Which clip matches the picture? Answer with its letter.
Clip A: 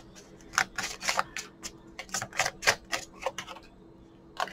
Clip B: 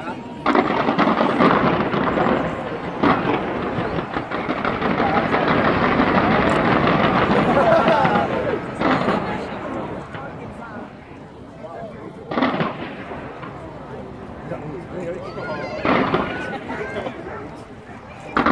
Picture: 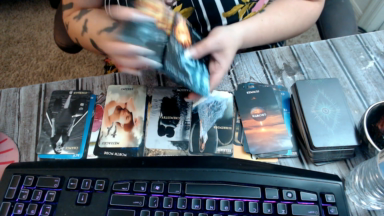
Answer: A